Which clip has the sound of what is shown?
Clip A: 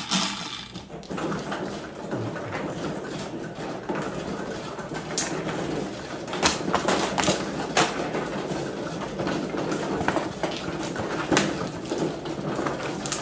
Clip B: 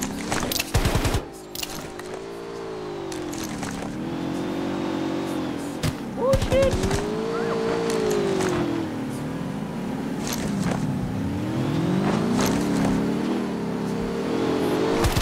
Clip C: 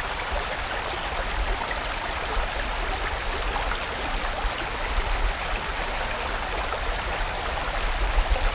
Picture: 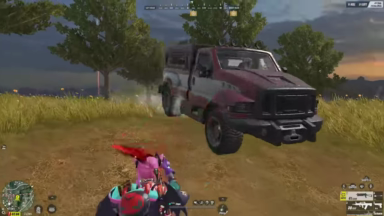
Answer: B